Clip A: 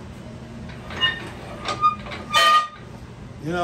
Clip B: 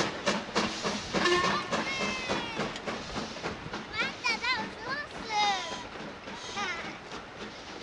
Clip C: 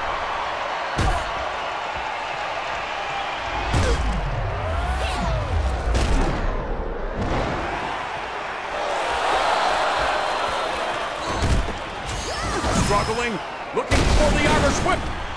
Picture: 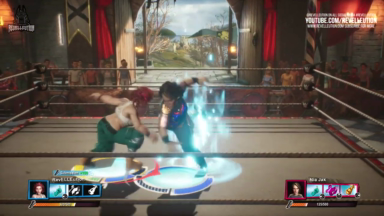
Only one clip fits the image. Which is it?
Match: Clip C